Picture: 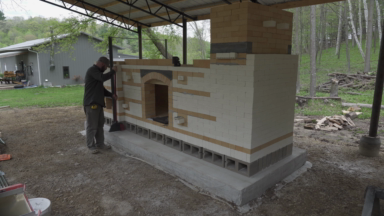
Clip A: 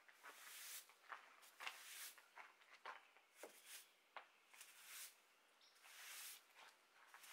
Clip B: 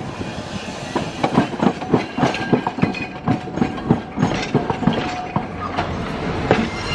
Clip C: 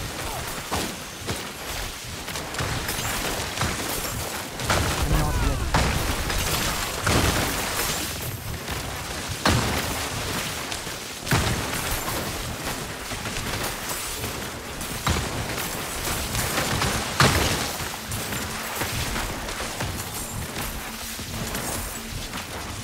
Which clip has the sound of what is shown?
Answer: A